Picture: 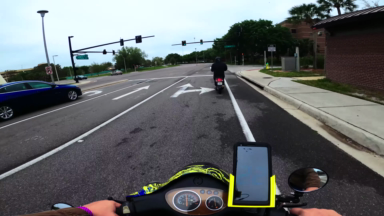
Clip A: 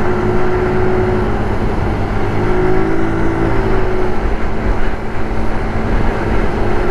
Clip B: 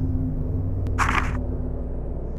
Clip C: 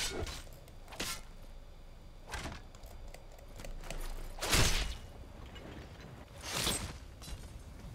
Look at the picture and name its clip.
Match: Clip A